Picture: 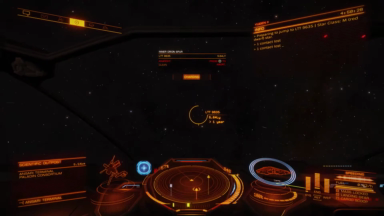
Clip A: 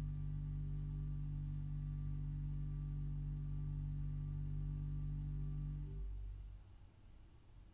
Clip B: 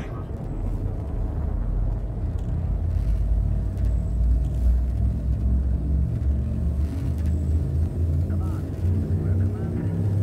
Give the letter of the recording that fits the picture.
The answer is B